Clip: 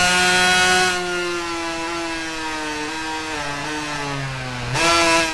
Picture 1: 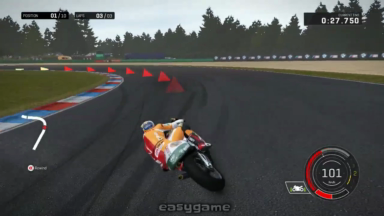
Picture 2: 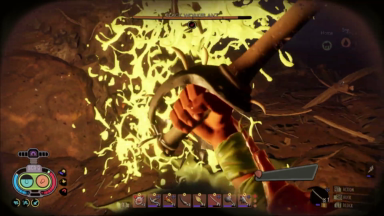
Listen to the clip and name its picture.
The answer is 1